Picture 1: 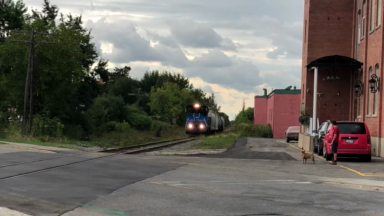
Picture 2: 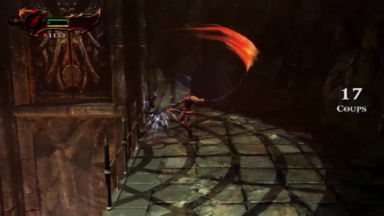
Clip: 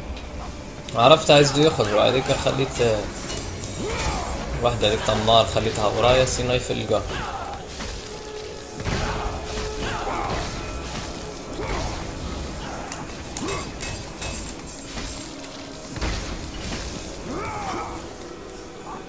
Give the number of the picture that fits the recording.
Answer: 2